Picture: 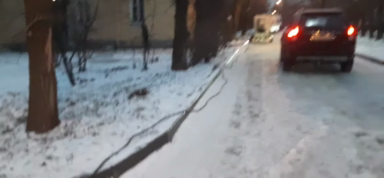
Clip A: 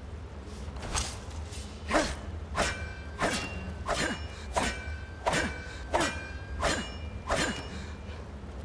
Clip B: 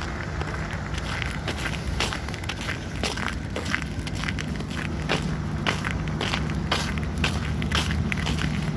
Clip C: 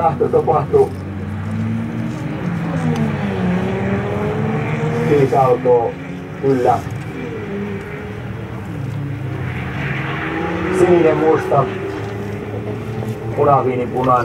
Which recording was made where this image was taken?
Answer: B